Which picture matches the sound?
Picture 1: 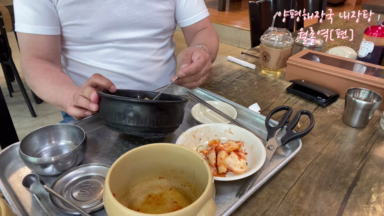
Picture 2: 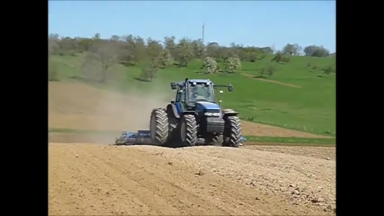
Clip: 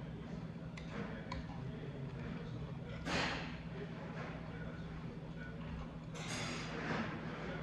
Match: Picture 1